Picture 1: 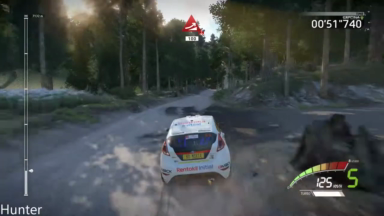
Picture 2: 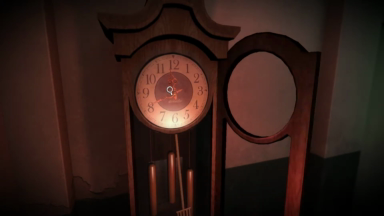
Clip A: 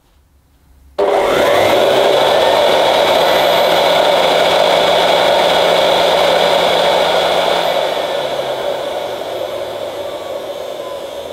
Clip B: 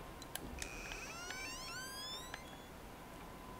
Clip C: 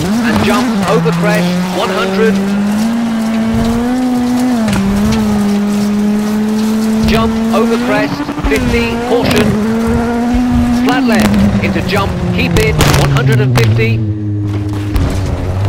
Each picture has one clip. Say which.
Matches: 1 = C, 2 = B